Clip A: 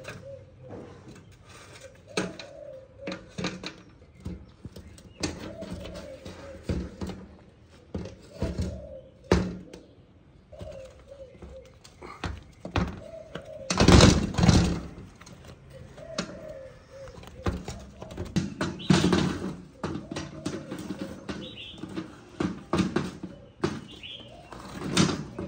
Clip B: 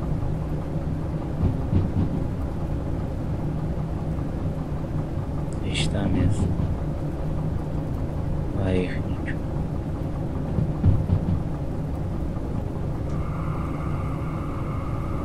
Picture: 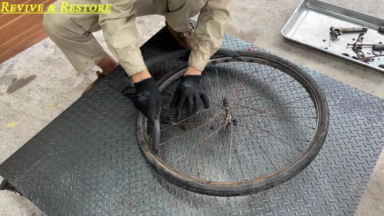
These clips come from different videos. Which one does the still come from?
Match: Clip A